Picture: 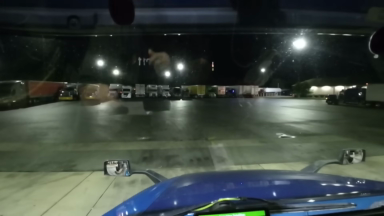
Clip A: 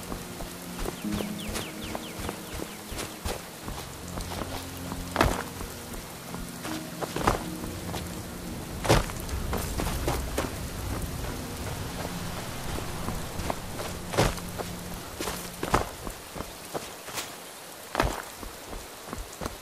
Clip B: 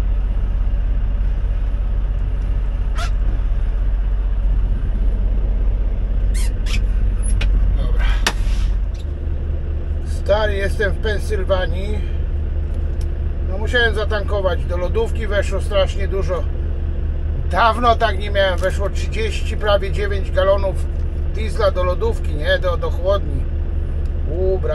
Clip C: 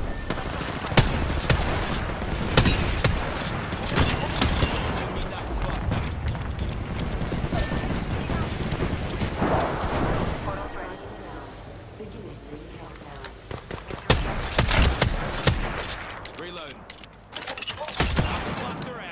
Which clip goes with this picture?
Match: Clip B